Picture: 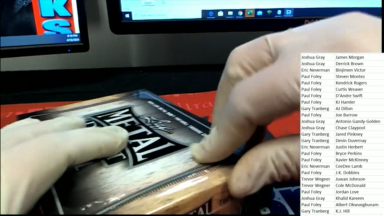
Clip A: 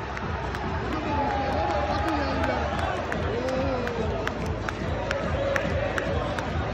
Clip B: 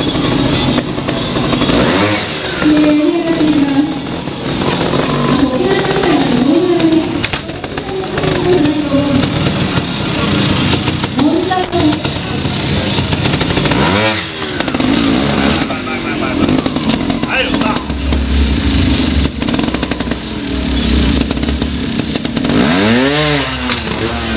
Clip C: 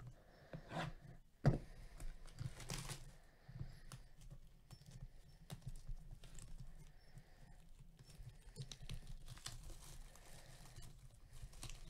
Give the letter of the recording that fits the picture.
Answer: C